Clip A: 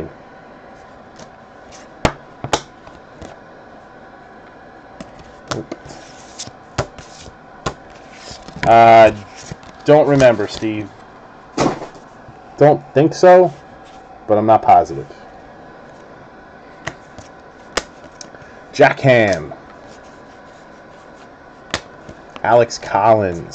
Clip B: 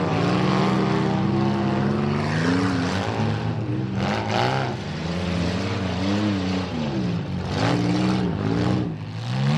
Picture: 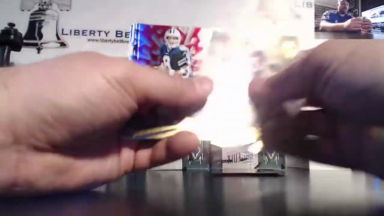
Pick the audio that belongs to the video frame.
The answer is A